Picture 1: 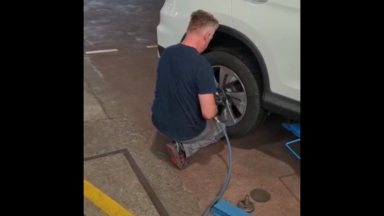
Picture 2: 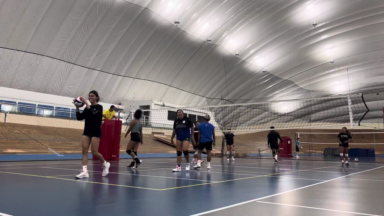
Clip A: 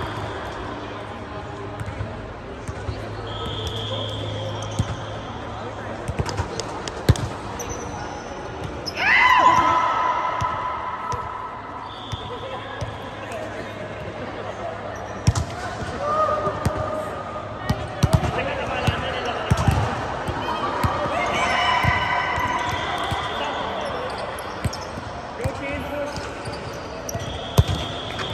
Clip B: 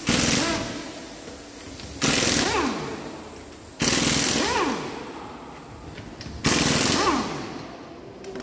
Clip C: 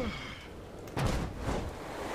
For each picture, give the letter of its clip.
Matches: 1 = B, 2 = A